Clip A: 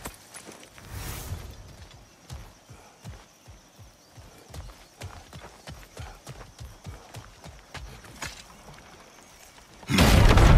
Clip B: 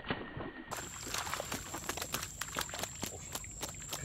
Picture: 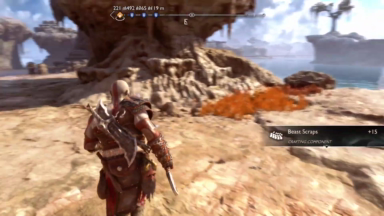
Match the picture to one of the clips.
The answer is A